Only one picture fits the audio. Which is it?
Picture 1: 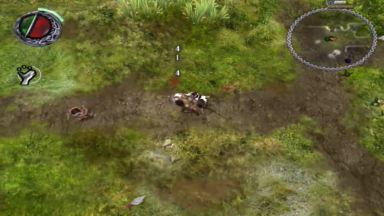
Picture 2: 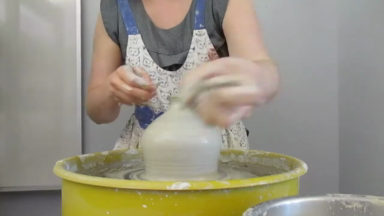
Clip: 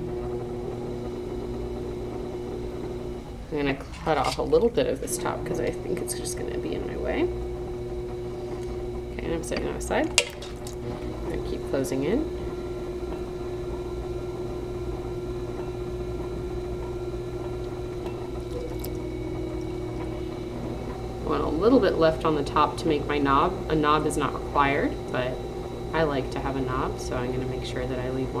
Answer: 2